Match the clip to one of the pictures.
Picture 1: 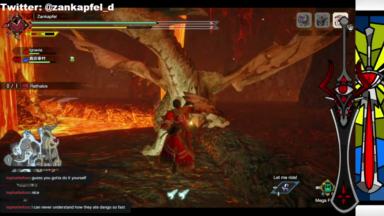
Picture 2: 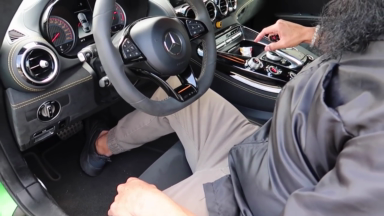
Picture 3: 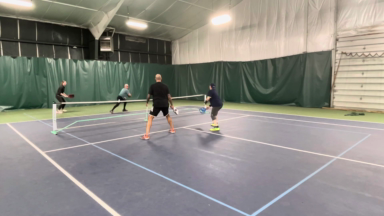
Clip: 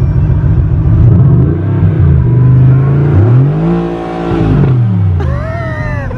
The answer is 2